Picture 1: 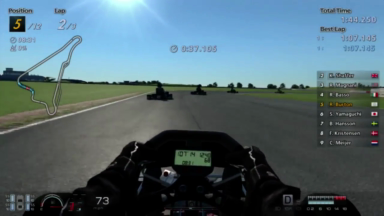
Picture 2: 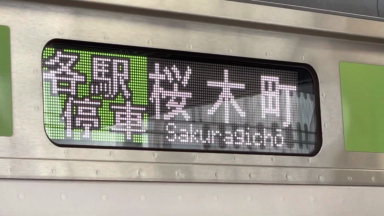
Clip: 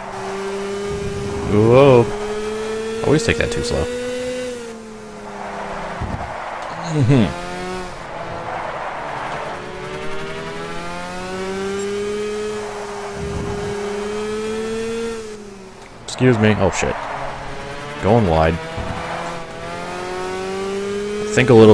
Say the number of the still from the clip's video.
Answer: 1